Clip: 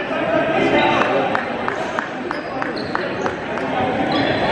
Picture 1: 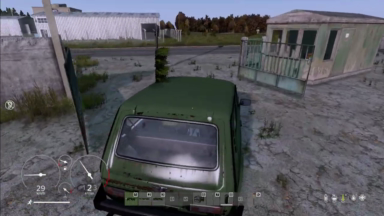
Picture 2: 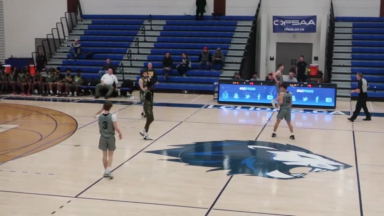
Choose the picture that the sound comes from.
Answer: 2